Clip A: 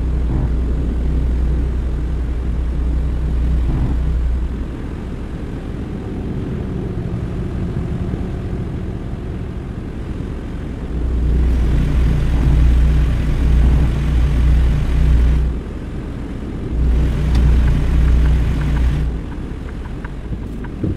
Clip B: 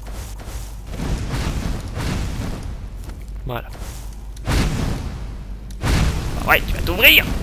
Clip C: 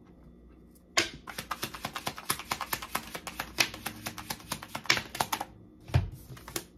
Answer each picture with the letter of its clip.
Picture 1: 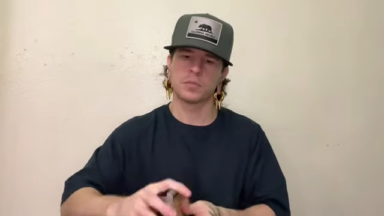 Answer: C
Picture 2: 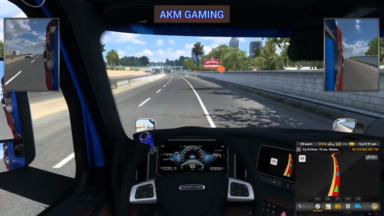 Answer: A